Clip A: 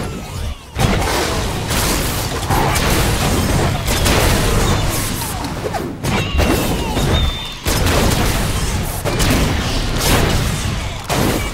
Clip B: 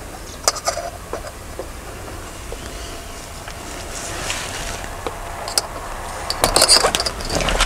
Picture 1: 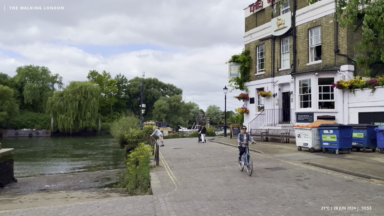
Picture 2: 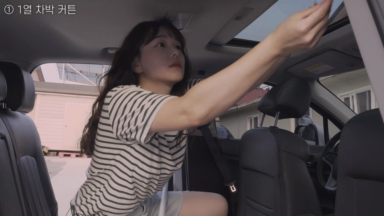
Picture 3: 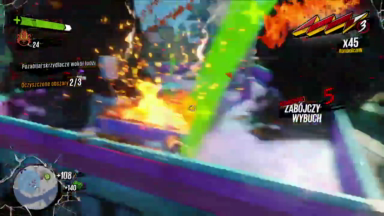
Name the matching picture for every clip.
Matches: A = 3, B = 2